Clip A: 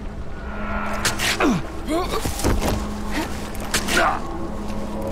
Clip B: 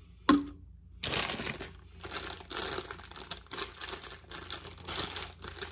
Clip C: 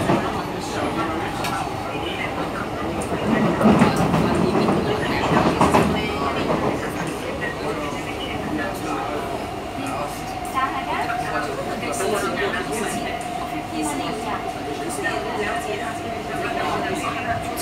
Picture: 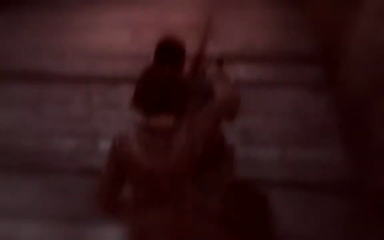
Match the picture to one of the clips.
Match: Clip A